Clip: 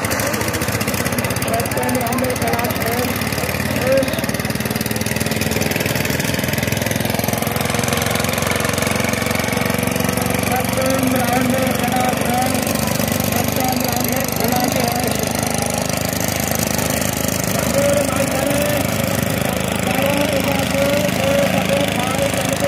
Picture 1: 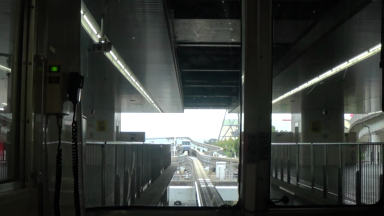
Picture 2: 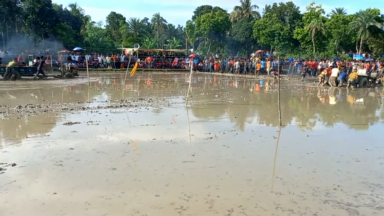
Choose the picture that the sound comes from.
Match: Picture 2